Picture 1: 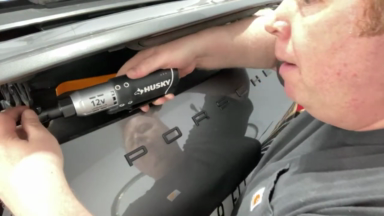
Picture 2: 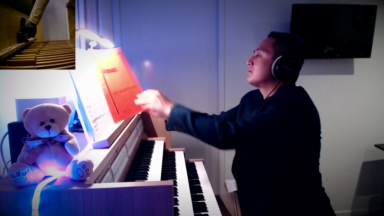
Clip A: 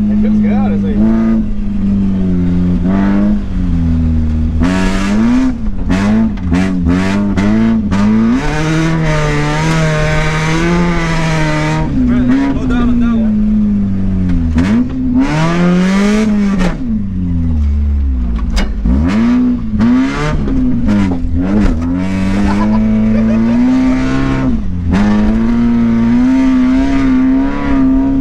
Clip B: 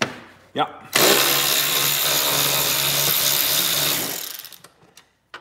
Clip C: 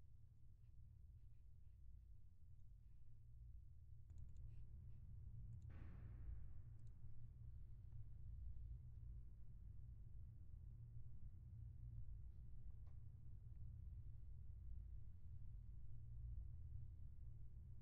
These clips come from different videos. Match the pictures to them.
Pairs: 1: B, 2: C